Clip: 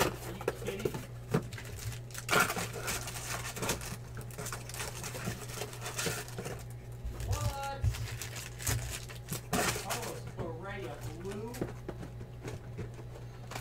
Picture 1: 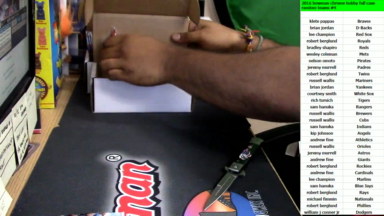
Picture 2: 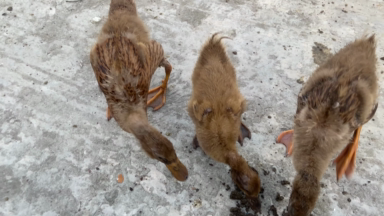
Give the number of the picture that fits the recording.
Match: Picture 1